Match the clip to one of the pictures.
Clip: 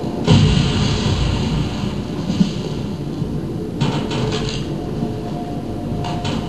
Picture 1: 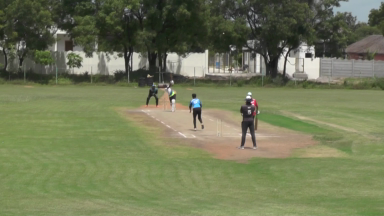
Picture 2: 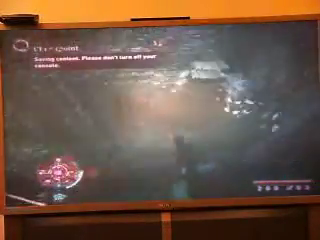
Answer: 2